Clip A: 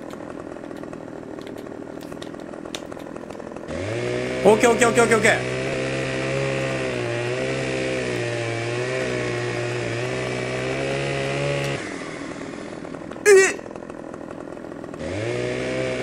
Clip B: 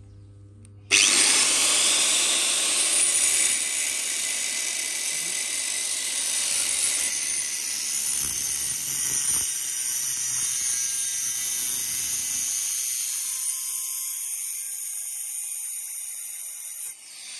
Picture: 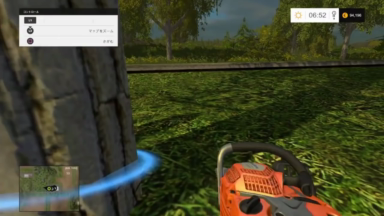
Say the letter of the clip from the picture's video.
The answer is A